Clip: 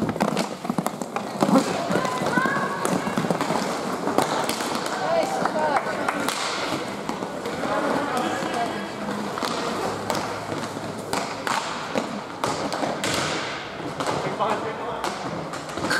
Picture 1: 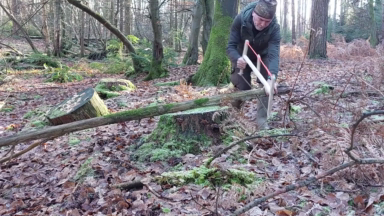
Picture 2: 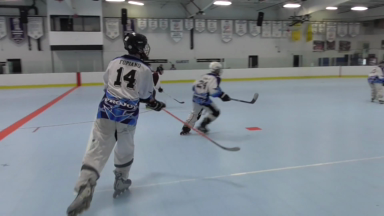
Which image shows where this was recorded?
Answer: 2